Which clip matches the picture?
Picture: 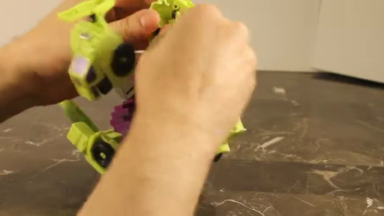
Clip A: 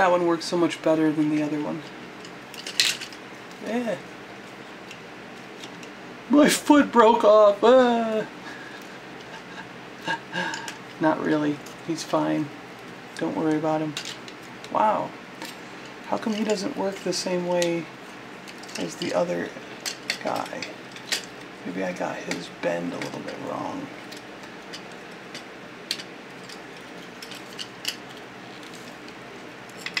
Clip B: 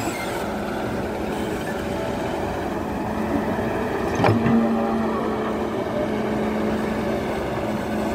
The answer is A